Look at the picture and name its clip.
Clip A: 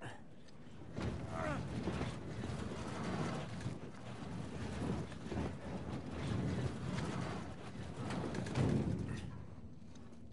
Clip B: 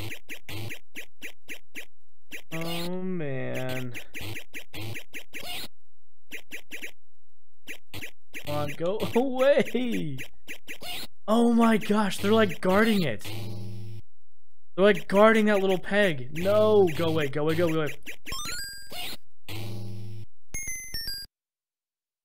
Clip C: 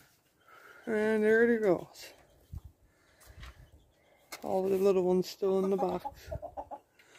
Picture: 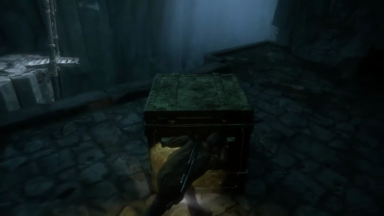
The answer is A